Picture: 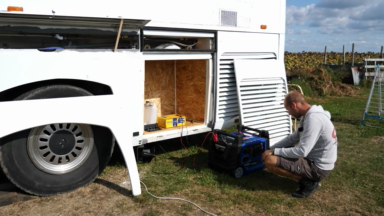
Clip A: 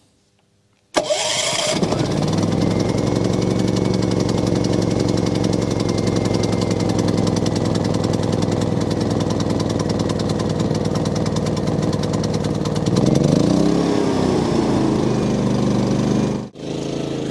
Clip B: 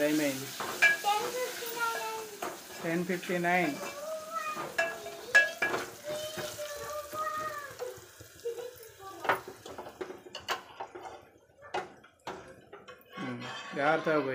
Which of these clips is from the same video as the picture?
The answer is A